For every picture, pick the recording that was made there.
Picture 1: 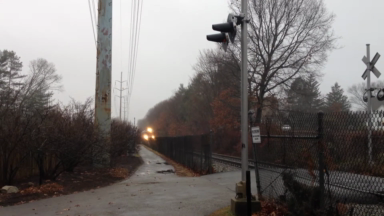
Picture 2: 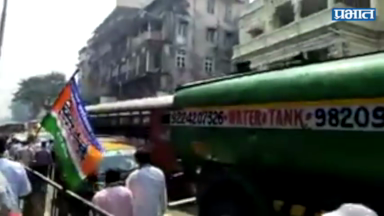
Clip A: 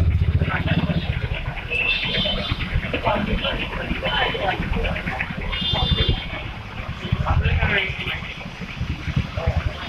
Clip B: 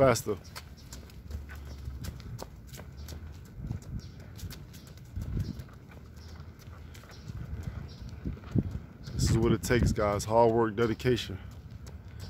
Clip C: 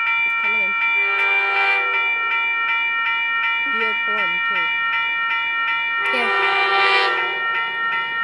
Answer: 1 C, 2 A